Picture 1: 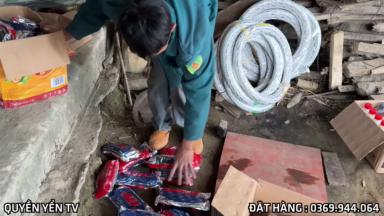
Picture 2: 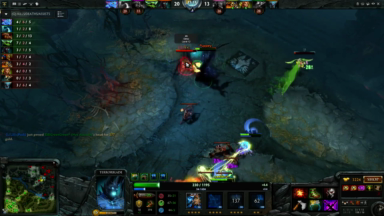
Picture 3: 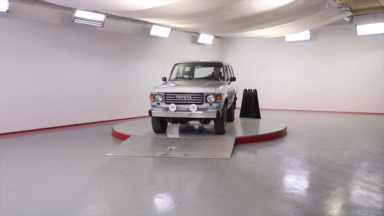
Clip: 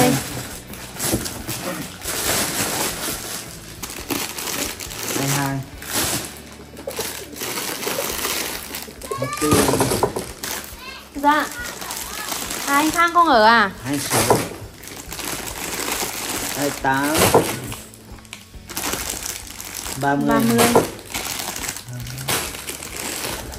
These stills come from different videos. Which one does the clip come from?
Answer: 1